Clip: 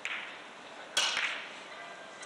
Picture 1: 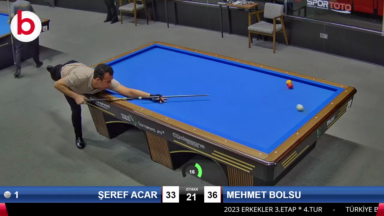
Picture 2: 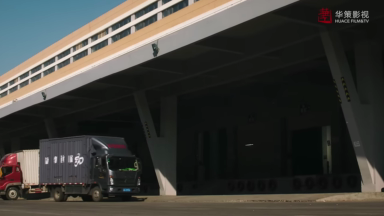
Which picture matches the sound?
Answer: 1